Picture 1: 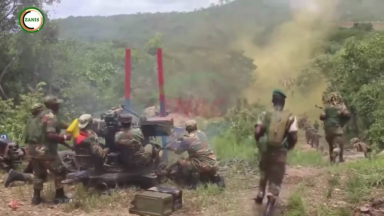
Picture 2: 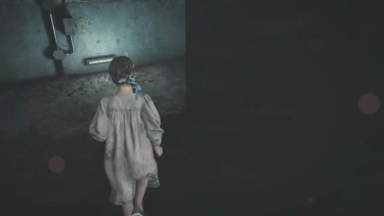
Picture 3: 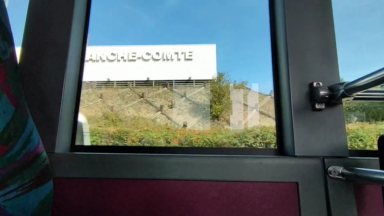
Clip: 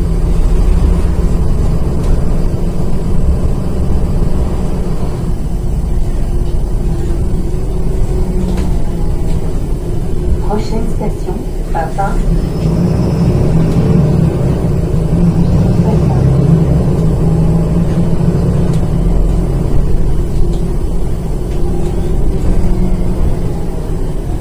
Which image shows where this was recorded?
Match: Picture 3